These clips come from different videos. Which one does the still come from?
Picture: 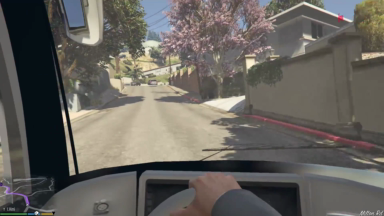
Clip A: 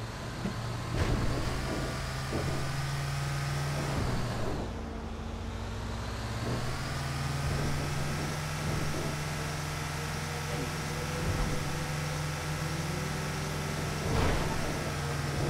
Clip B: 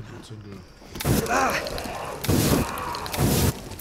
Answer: A